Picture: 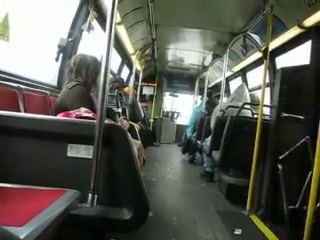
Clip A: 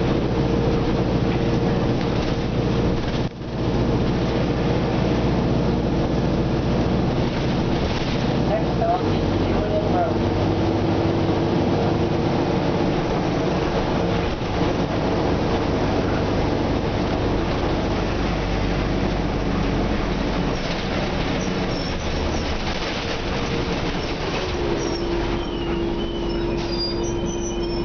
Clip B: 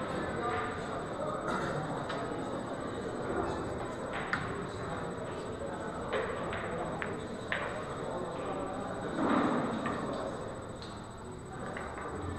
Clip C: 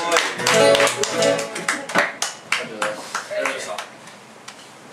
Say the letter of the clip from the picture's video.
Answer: A